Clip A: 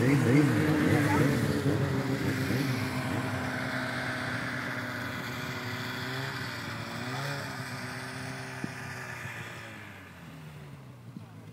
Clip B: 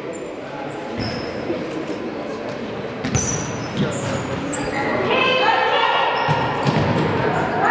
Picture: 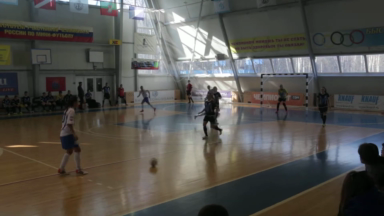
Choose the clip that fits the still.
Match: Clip B